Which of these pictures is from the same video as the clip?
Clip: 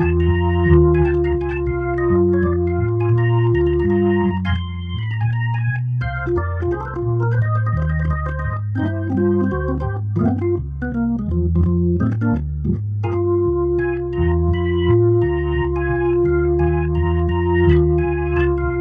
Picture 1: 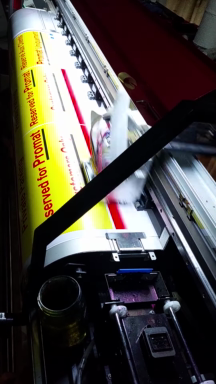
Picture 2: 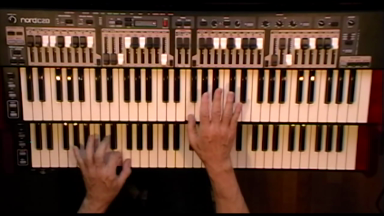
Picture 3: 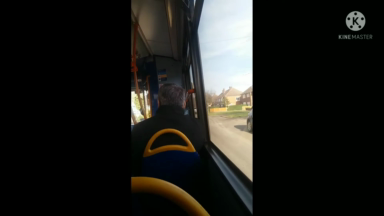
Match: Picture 2